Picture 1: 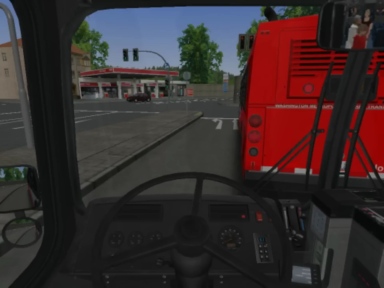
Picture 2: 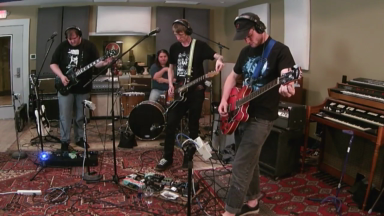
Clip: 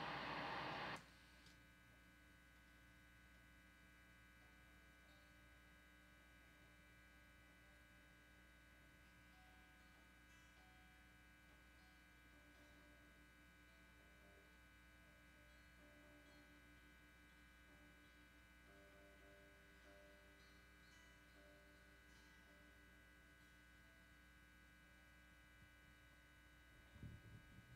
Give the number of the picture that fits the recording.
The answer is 2